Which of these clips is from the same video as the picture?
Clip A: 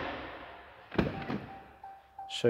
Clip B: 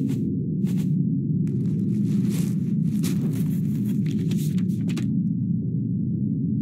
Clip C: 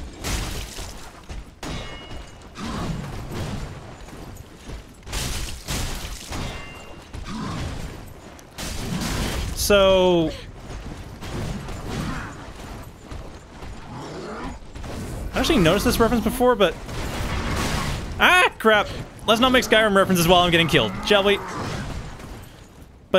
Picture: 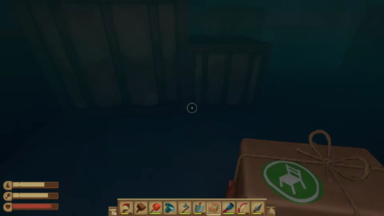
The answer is B